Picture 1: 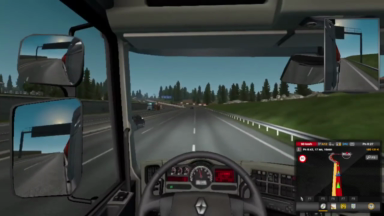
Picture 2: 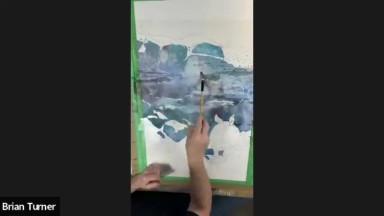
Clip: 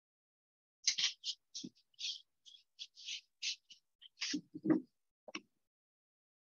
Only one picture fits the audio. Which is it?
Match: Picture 2